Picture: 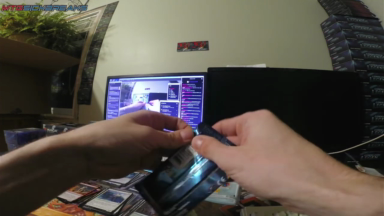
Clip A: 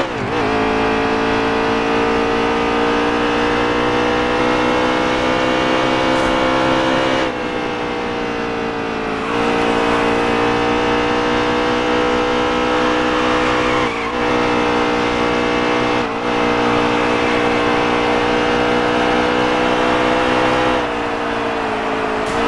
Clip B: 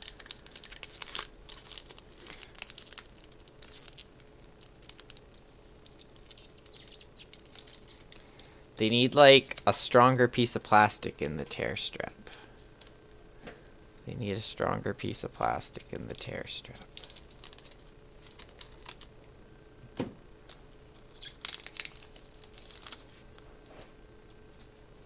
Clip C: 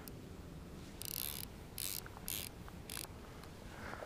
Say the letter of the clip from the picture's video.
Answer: B